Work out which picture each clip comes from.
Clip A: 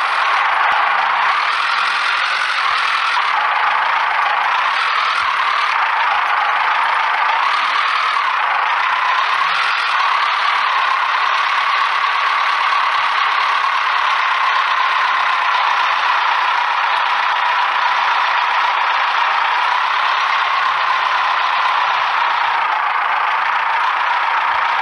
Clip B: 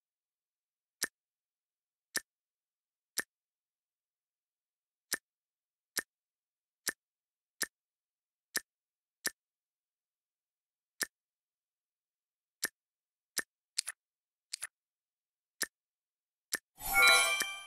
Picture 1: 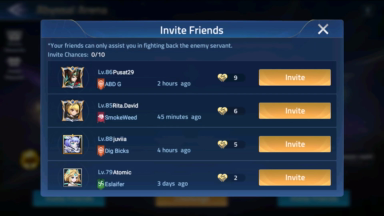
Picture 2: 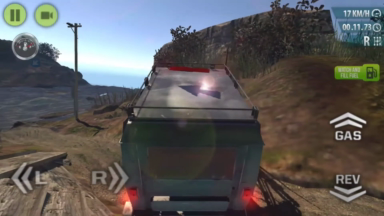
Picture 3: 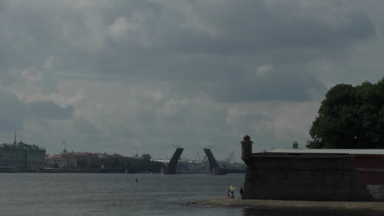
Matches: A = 2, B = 1